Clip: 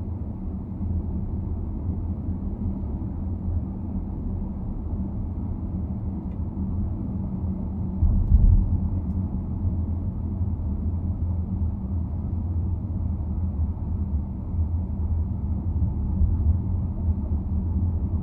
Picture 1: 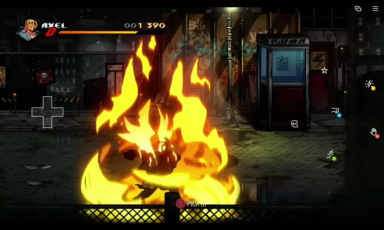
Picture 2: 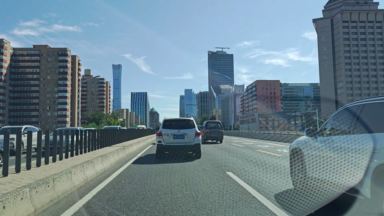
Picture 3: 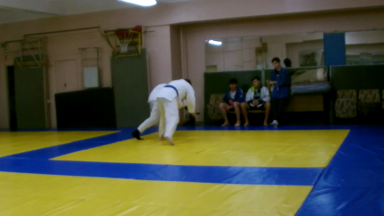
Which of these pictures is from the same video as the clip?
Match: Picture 2